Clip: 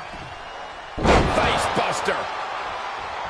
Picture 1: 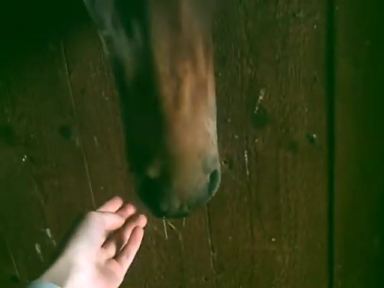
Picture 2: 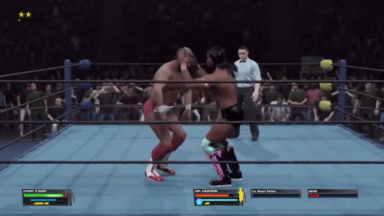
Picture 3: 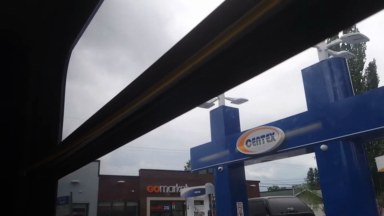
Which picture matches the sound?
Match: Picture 2